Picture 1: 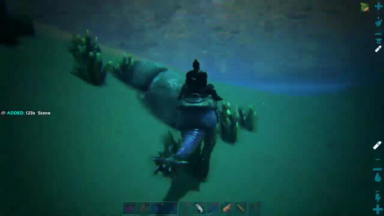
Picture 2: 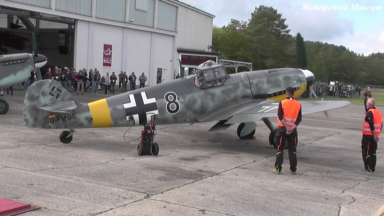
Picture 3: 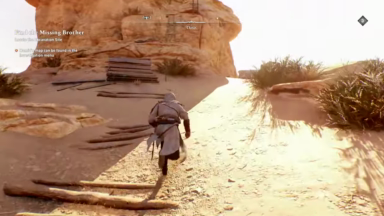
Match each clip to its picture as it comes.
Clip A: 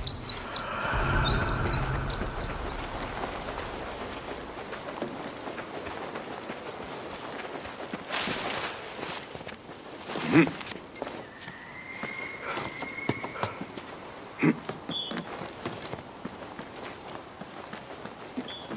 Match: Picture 3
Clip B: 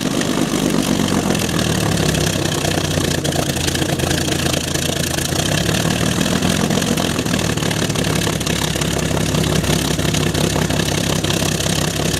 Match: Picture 2